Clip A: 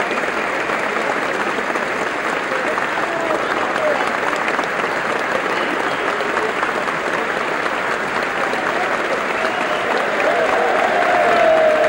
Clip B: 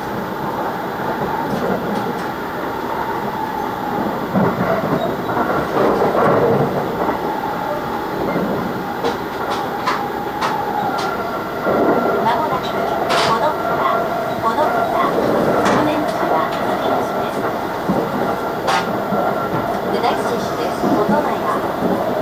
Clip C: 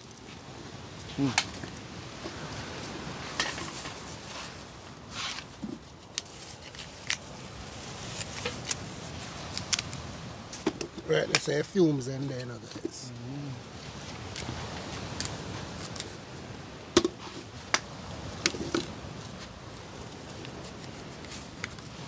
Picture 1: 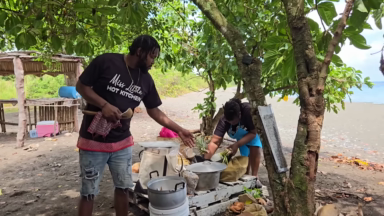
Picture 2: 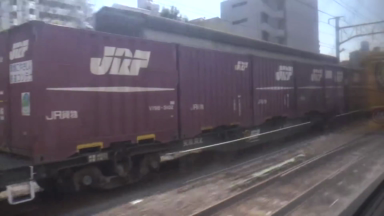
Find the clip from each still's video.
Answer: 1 C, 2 B